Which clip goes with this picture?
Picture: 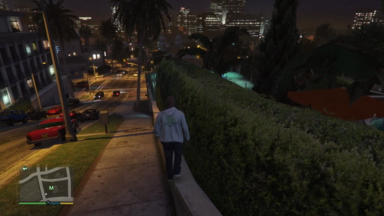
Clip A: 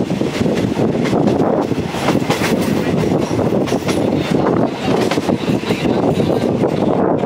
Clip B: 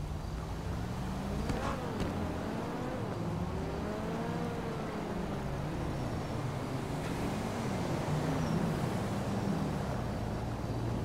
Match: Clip B